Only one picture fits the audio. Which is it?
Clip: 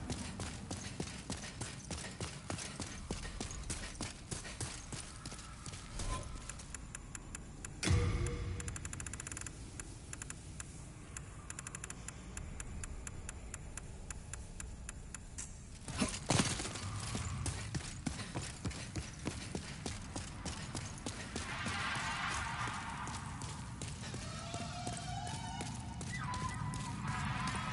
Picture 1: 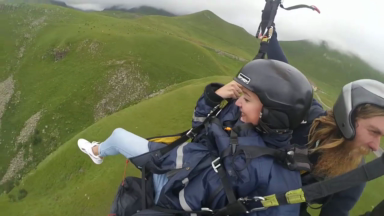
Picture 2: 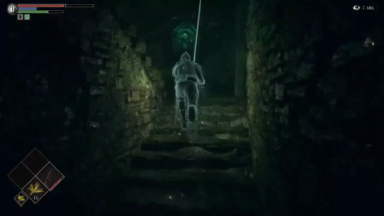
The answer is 2